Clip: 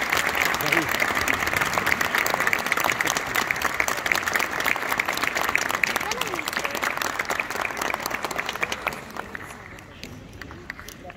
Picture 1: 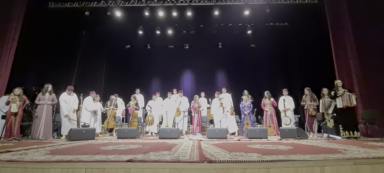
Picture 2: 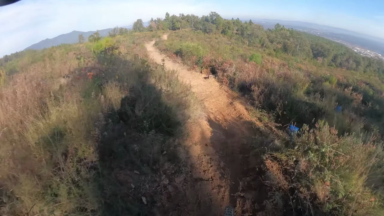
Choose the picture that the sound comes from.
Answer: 1